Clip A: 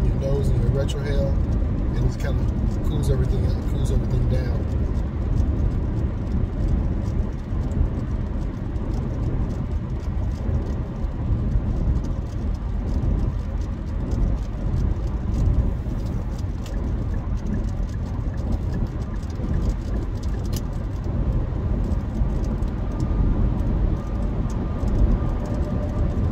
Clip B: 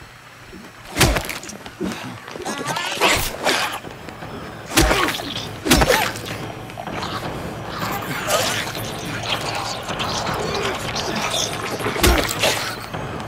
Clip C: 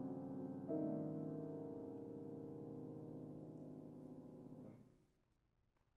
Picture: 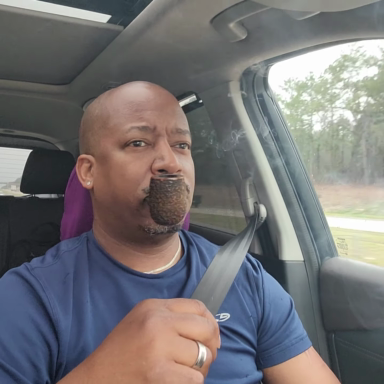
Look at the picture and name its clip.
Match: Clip A